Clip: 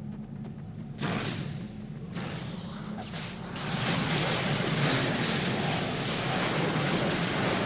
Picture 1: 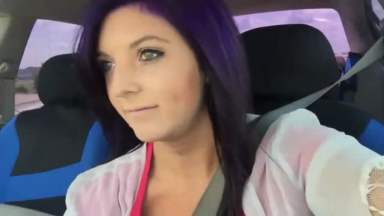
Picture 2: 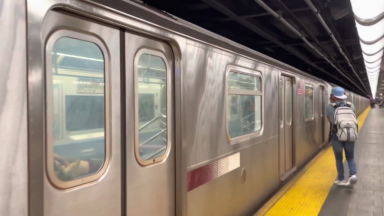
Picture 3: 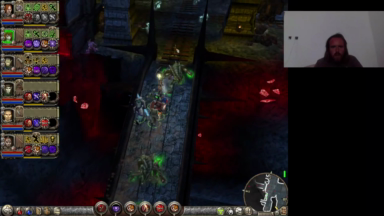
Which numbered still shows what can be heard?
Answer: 3